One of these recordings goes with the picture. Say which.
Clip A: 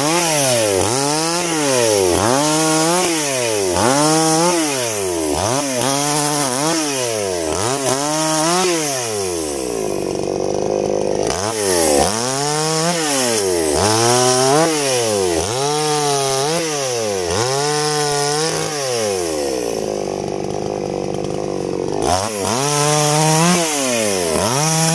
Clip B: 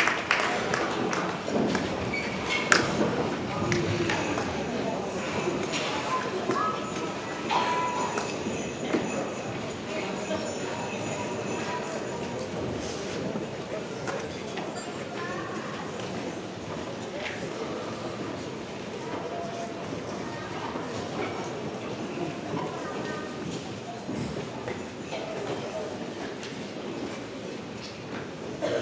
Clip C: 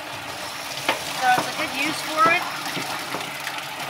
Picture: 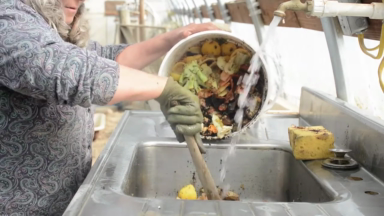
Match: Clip C